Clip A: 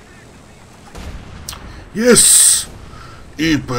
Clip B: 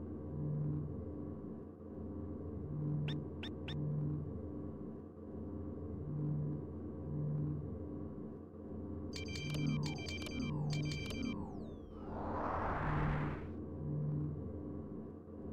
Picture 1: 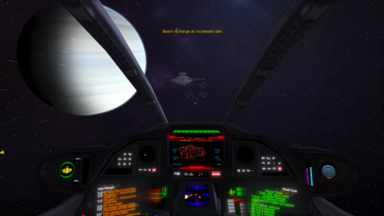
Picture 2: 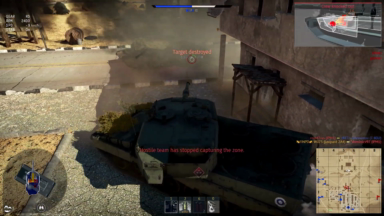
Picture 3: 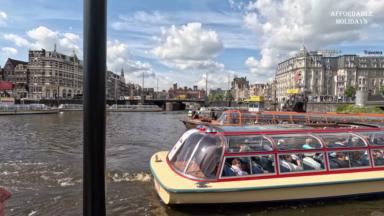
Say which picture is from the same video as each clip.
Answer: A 2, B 1